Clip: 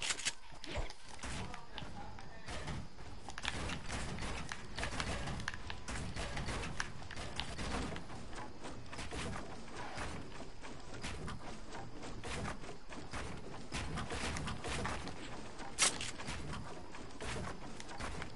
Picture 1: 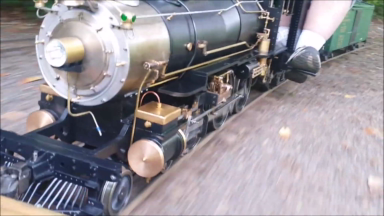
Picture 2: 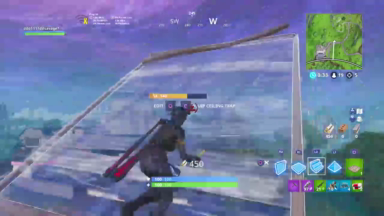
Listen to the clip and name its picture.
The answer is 2